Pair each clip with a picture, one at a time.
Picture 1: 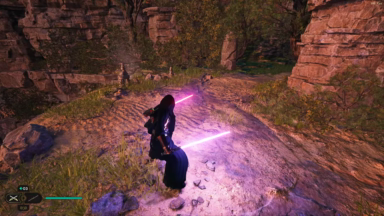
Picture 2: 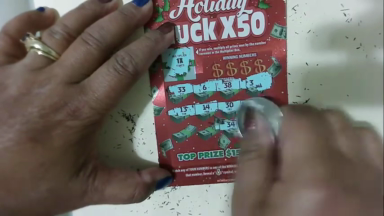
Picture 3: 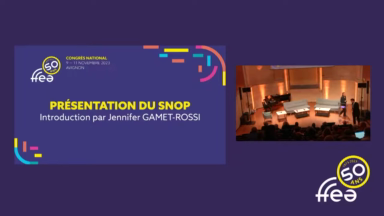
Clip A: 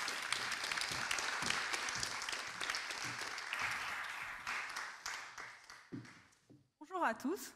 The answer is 3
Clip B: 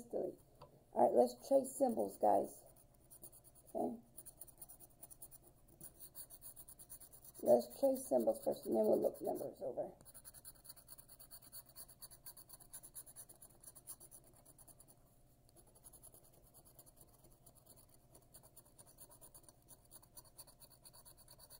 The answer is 2